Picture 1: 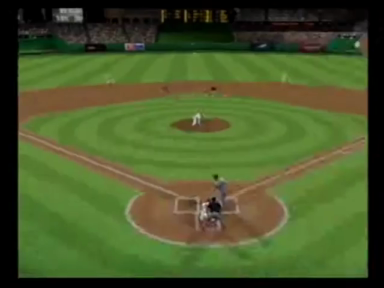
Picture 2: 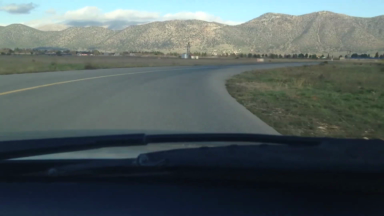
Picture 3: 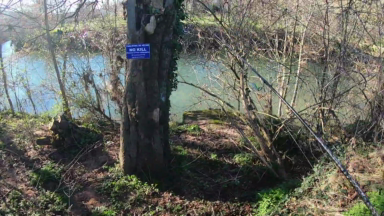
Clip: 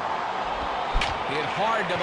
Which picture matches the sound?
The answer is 1